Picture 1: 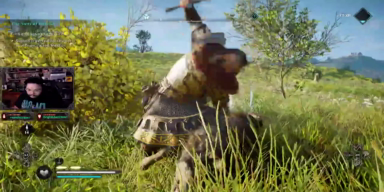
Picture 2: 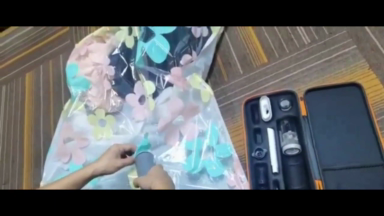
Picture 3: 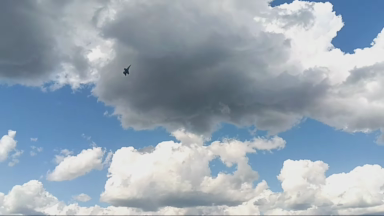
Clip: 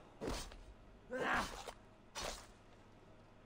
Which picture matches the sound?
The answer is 1